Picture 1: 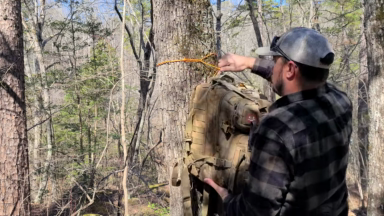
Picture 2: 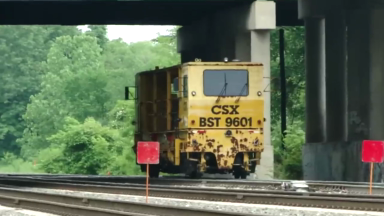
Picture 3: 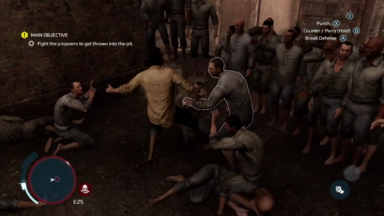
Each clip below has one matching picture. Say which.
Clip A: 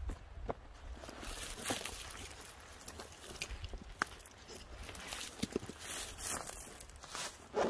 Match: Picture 1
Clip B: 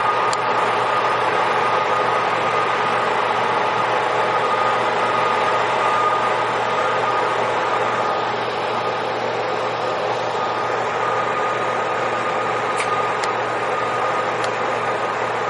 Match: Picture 2